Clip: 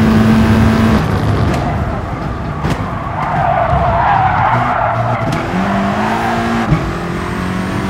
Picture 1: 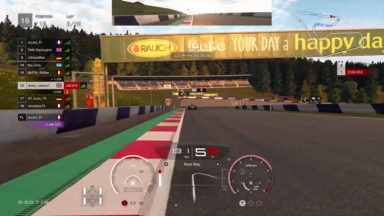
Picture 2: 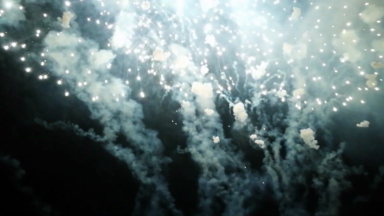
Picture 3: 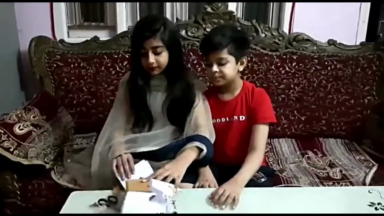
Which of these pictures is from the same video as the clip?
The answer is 1